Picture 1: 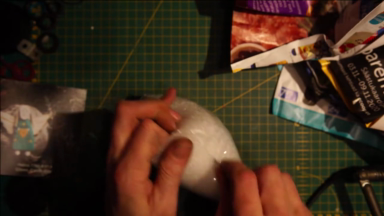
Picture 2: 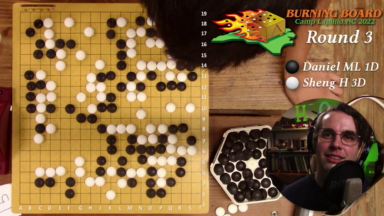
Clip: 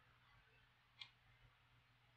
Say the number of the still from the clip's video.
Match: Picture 2